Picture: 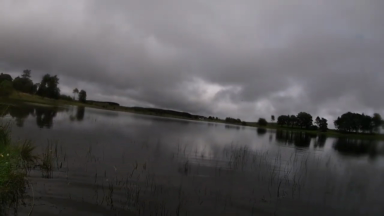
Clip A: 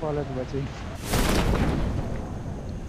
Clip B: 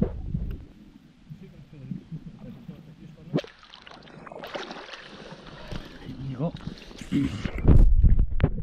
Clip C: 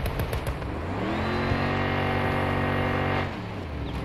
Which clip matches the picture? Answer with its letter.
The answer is B